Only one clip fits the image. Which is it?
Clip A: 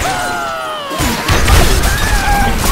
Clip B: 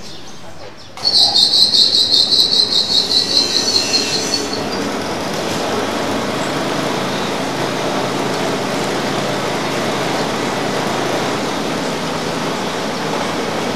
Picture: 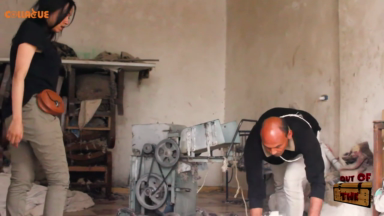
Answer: B